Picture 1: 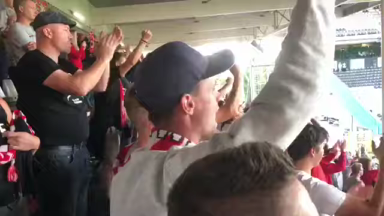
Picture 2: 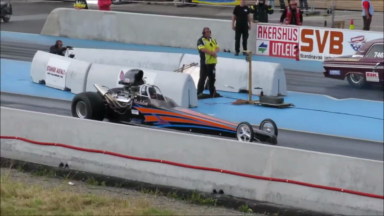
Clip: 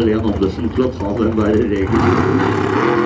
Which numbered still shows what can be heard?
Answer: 2